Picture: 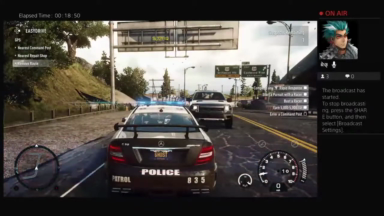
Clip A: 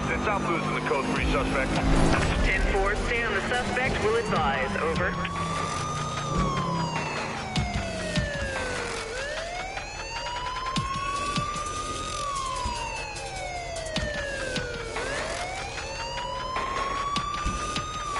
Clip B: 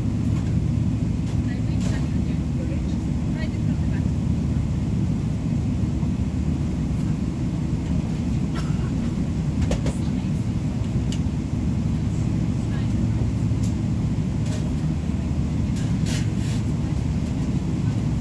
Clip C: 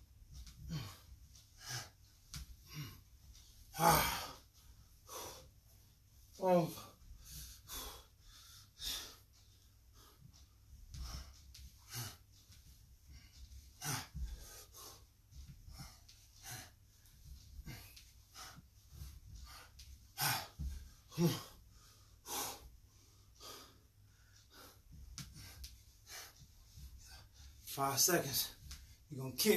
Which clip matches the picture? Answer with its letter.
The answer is A